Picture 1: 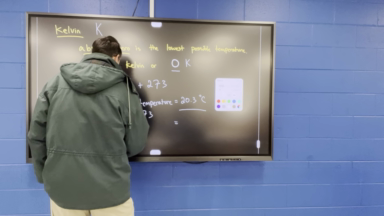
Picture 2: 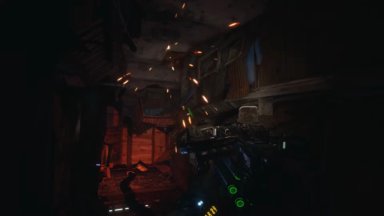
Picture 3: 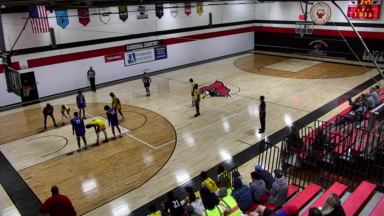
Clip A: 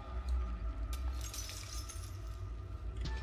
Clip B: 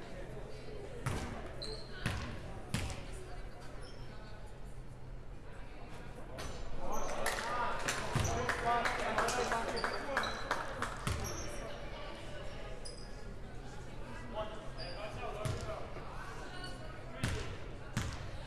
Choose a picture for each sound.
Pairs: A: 2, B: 3